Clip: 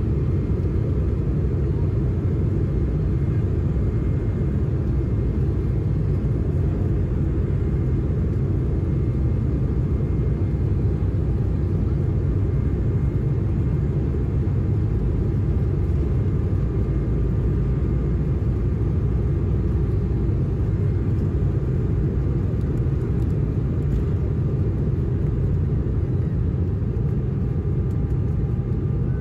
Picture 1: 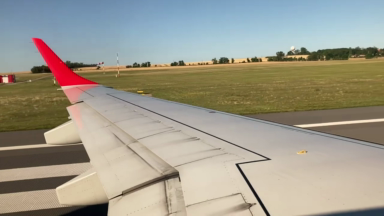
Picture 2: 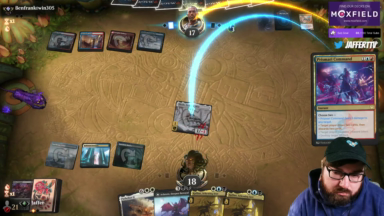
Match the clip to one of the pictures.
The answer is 1